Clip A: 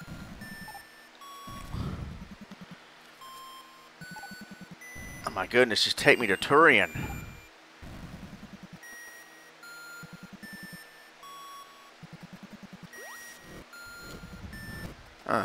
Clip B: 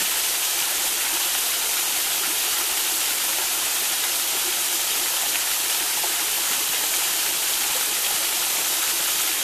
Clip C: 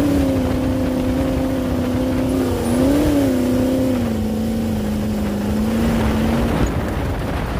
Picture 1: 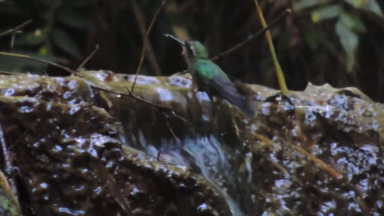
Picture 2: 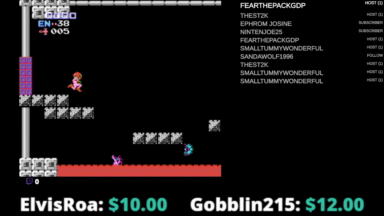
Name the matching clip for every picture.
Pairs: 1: B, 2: A